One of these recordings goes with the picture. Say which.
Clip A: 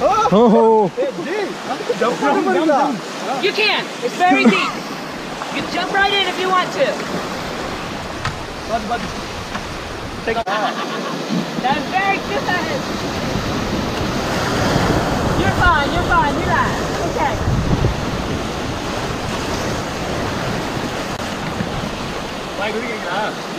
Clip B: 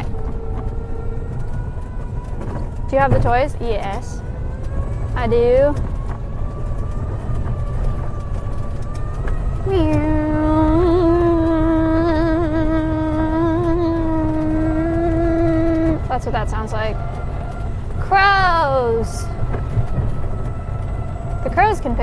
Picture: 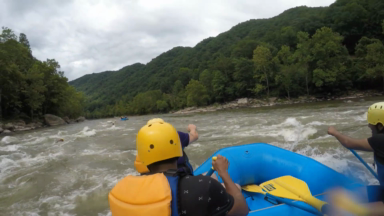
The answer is A